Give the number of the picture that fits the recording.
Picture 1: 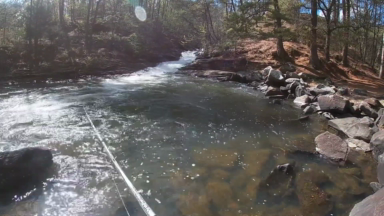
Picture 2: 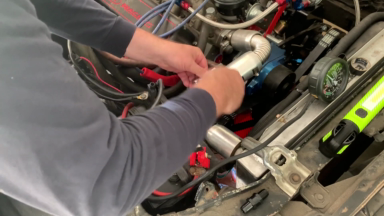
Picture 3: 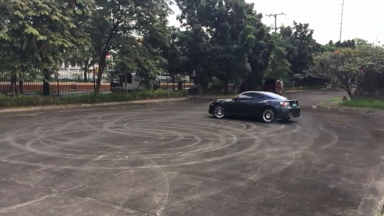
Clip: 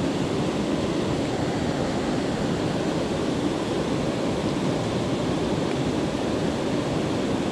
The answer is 1